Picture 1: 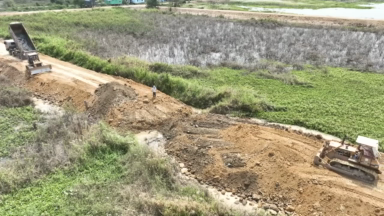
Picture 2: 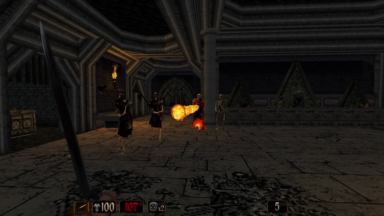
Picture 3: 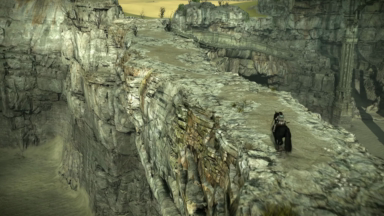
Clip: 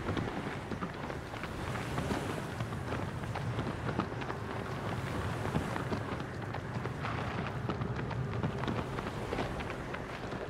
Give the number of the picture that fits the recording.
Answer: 3